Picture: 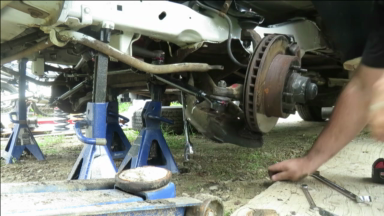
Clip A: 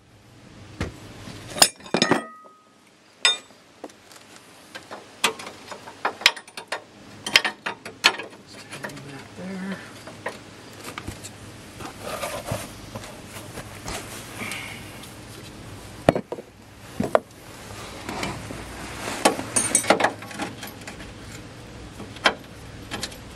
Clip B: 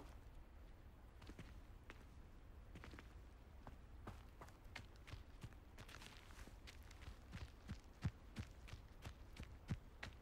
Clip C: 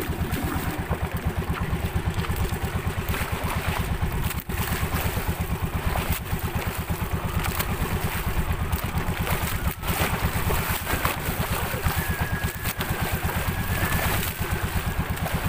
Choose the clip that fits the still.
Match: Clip A